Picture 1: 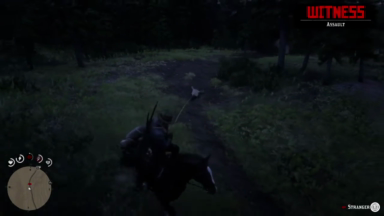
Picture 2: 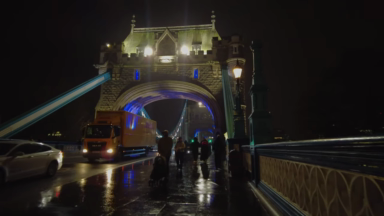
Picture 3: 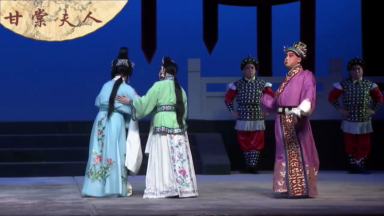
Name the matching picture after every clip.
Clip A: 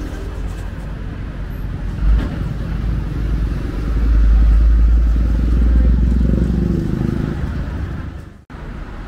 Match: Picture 2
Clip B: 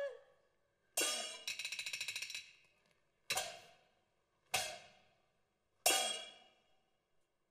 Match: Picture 3